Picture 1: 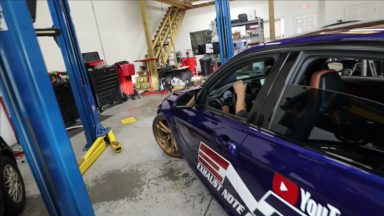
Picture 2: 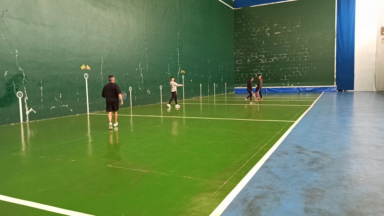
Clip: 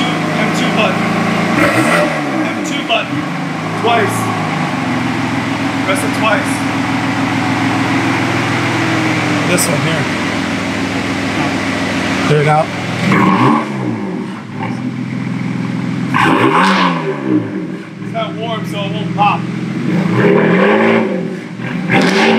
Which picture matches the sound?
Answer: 1